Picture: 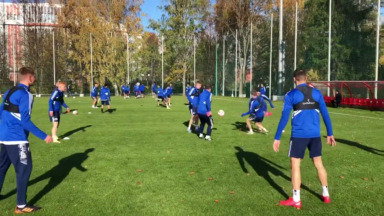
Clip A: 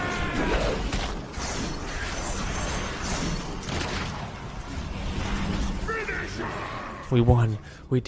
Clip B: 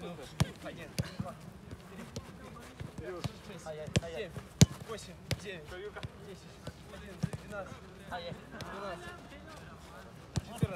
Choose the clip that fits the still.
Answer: B